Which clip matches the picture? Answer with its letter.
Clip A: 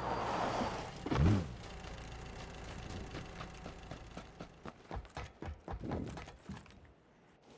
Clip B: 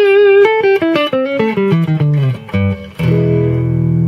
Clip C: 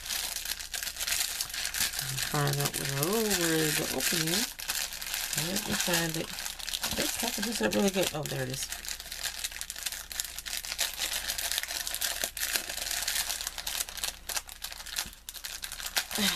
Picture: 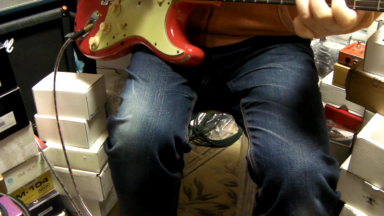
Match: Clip B